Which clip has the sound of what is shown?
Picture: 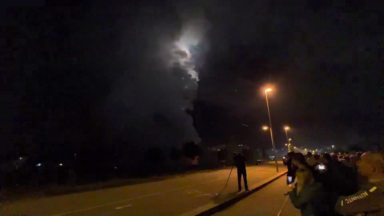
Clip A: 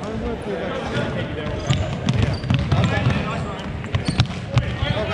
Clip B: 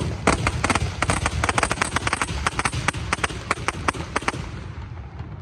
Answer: B